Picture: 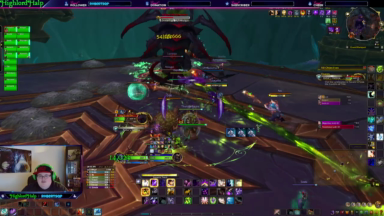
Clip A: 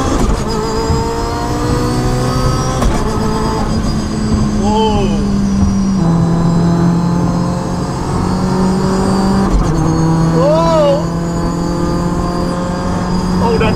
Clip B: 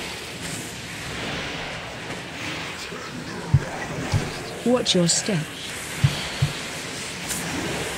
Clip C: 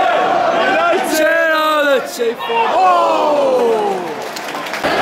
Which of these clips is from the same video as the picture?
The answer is B